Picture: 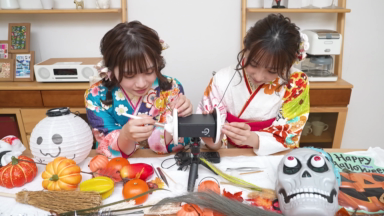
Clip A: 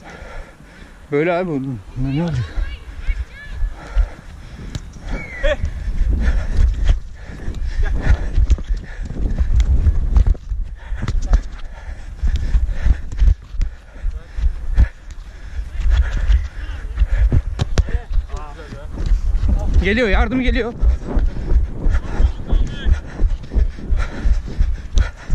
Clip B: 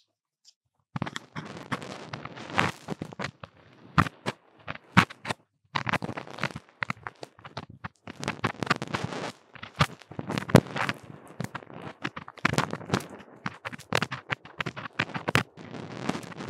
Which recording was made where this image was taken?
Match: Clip B